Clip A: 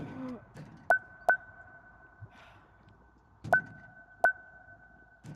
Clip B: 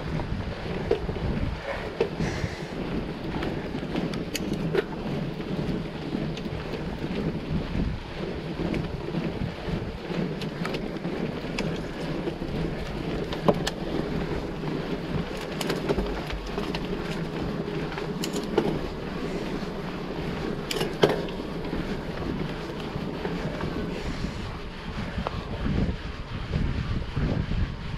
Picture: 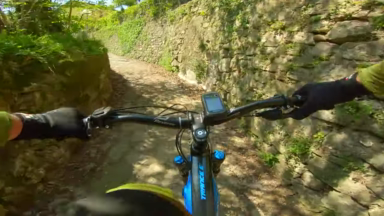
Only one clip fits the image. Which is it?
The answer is B